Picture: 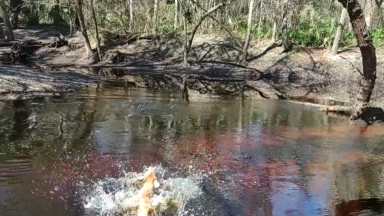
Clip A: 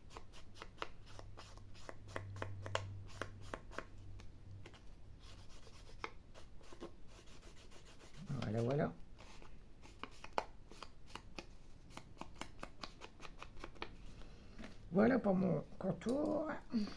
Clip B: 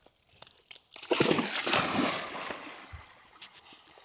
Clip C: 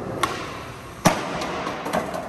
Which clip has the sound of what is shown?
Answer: B